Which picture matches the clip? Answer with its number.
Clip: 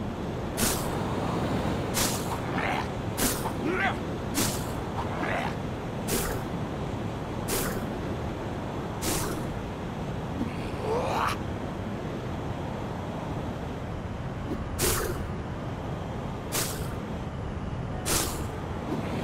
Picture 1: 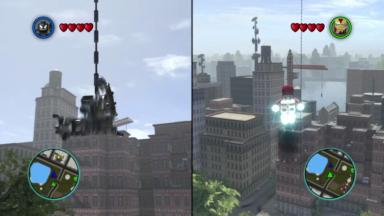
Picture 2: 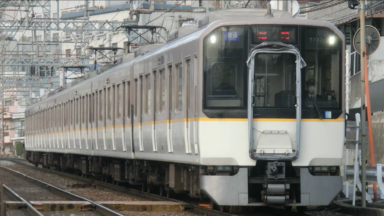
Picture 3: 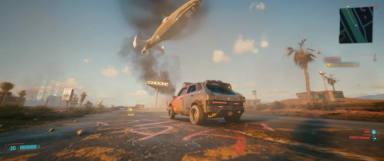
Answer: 1